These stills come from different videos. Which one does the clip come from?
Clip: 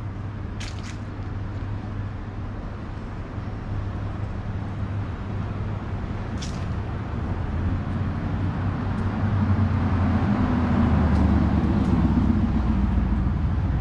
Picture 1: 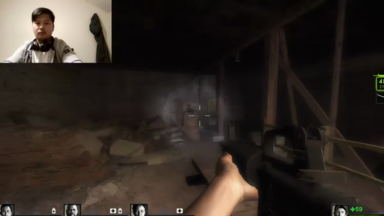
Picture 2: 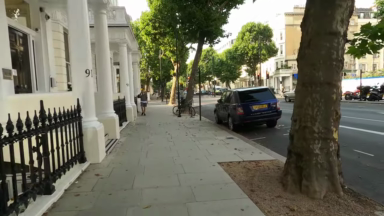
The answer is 2